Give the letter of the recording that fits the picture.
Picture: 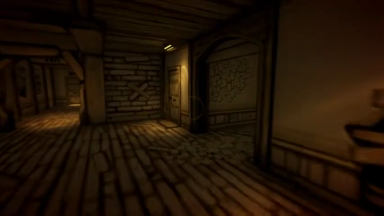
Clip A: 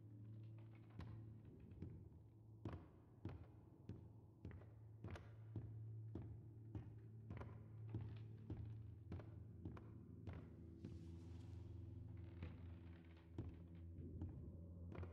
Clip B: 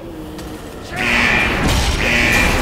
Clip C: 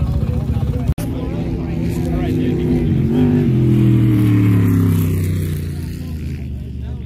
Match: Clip A